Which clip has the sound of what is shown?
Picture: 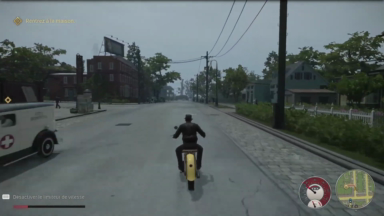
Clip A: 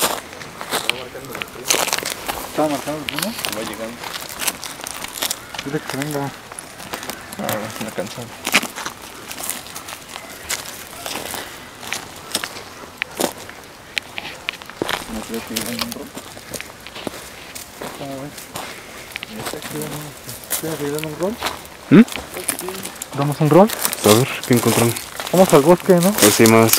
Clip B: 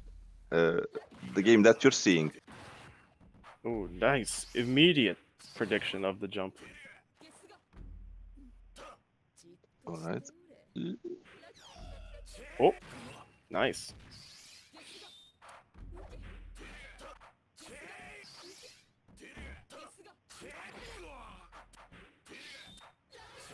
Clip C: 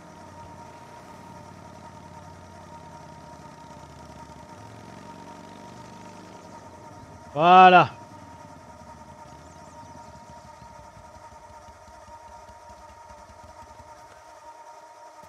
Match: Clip C